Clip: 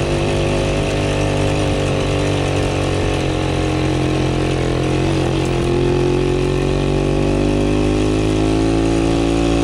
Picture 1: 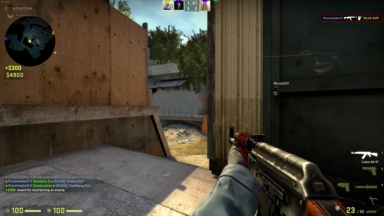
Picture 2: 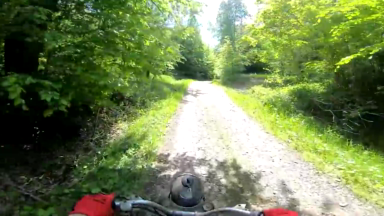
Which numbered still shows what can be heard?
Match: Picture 2